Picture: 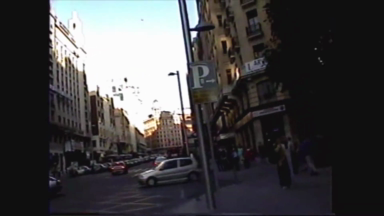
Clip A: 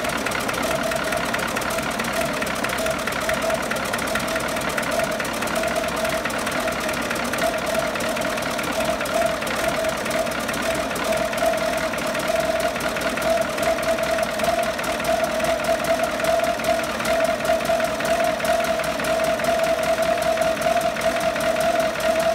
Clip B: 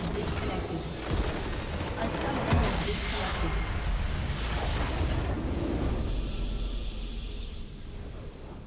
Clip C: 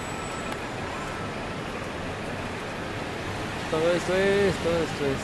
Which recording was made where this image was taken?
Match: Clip C